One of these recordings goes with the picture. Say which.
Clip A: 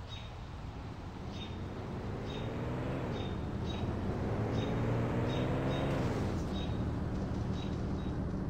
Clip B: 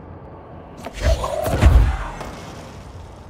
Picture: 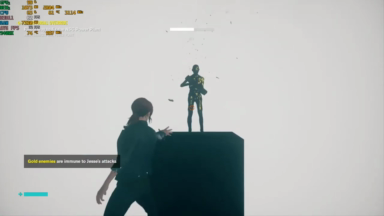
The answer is B